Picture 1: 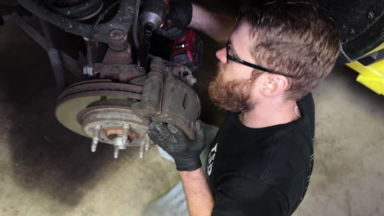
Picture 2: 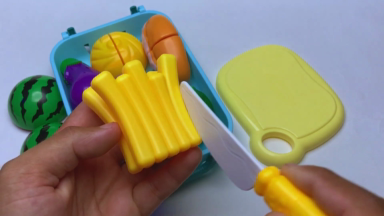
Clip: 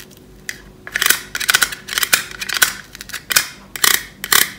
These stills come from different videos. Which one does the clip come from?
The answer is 2